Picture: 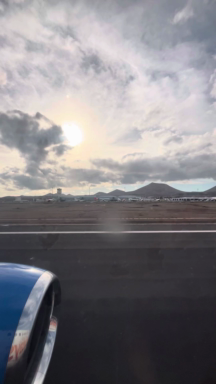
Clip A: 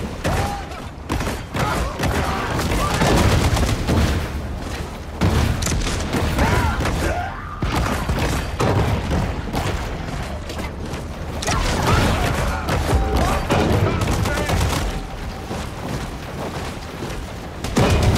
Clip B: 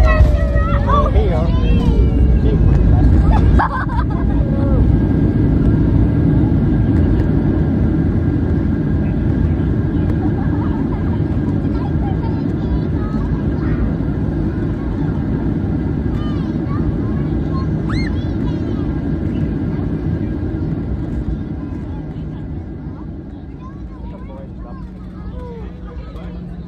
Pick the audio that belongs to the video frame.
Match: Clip B